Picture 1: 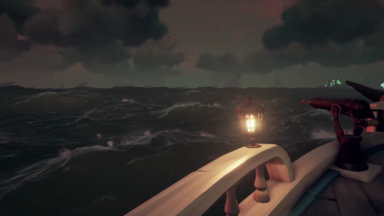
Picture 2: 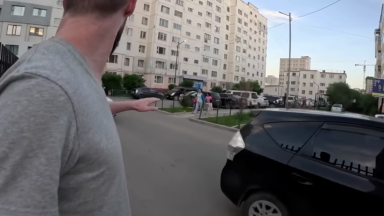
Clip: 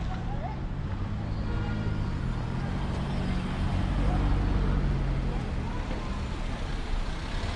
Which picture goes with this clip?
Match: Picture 2